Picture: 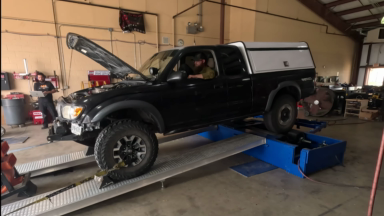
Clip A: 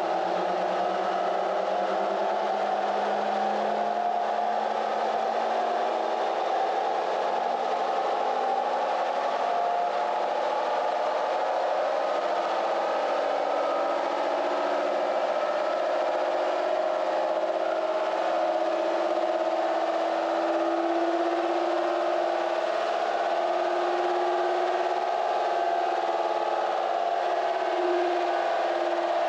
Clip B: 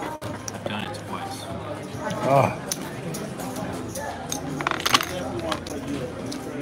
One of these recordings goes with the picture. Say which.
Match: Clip A